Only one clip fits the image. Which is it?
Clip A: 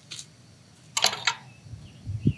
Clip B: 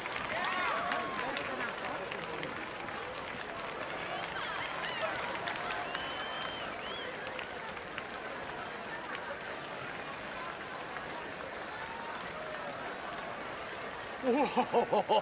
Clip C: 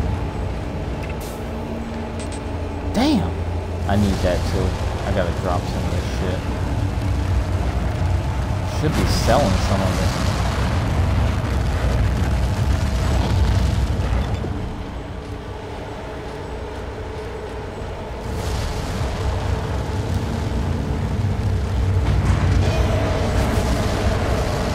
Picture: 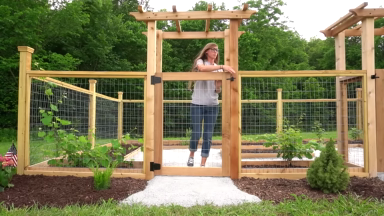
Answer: A